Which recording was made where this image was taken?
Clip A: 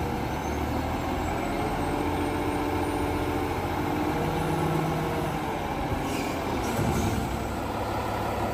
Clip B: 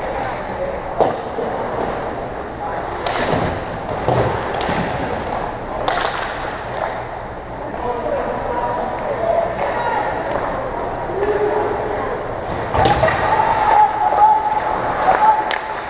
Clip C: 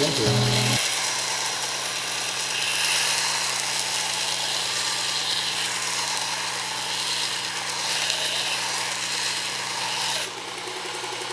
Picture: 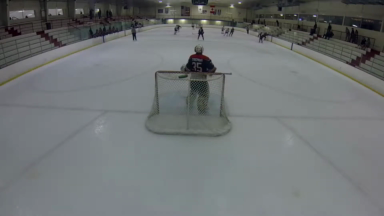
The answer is B